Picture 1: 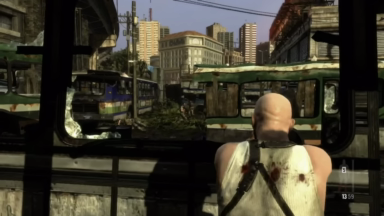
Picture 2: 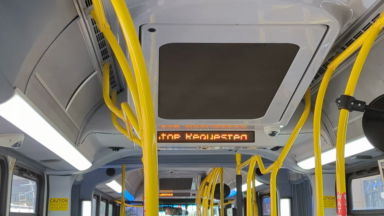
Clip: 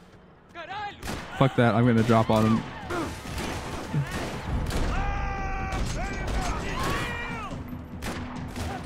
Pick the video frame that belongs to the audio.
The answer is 1